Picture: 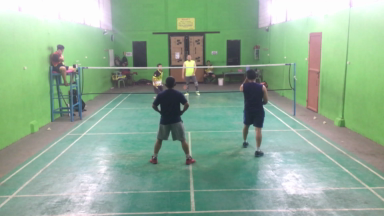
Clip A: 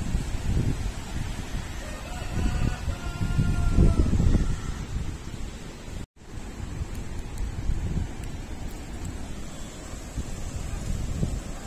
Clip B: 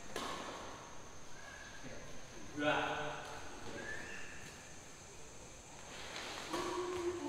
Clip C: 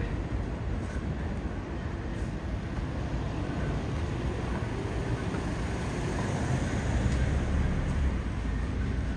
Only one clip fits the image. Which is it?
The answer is B